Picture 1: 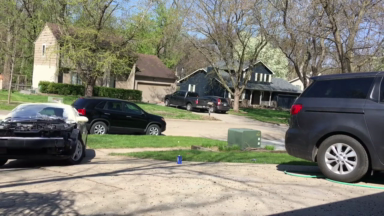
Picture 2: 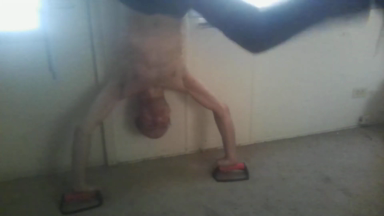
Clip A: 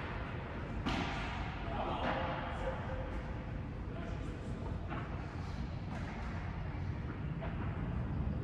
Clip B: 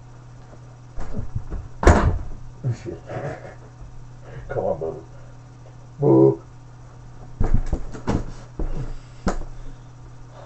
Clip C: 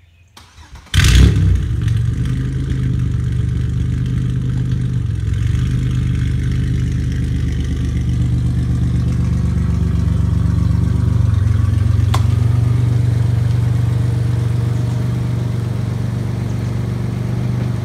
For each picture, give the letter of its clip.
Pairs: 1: C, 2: B